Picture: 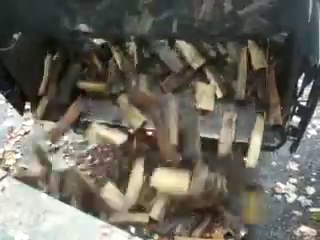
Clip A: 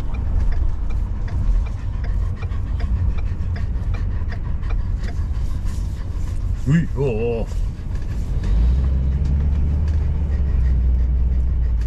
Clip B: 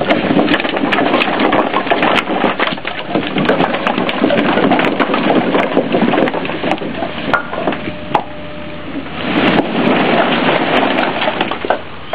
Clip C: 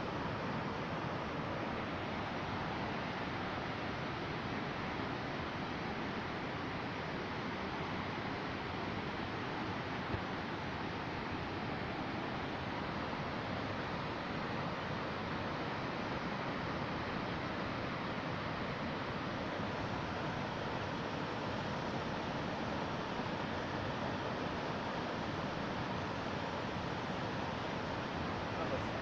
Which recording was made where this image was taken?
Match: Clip B